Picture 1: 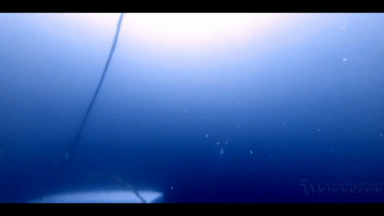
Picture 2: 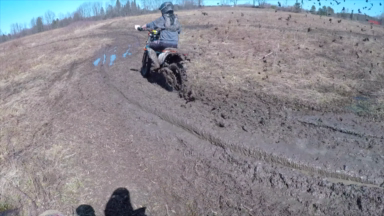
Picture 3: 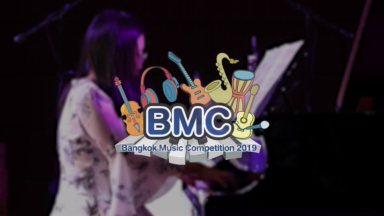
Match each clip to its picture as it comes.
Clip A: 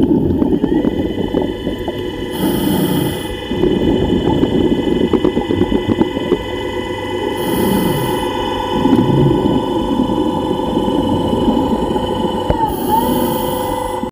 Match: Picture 1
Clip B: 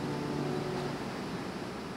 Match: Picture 3